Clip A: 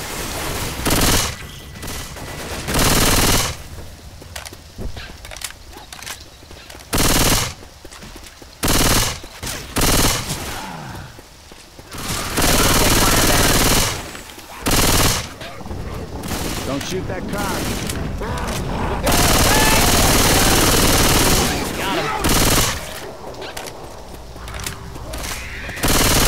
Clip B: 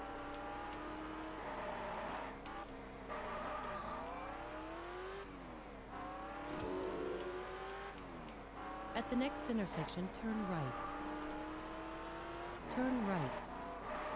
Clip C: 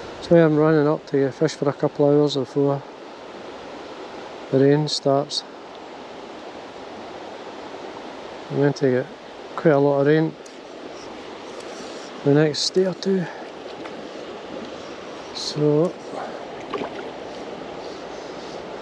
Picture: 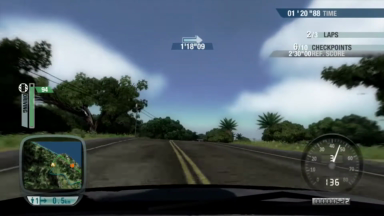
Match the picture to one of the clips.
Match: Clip B